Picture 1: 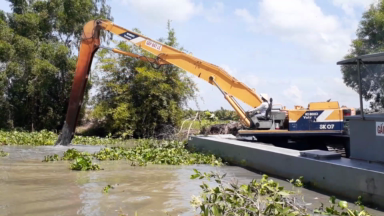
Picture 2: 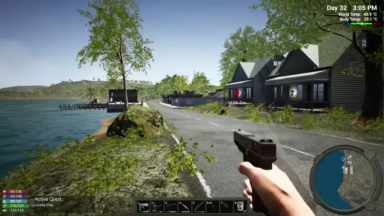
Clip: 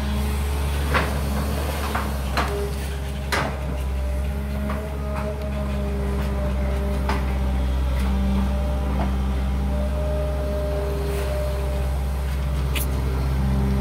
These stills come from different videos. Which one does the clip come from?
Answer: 1